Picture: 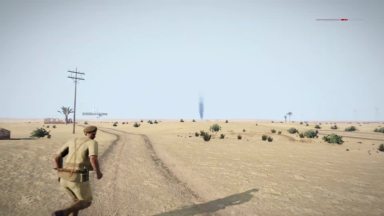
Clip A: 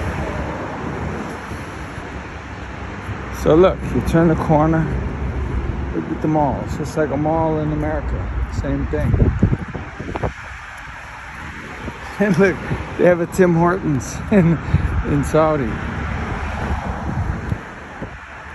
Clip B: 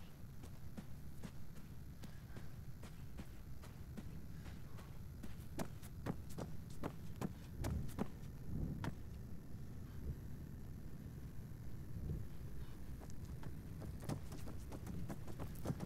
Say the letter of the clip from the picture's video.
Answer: B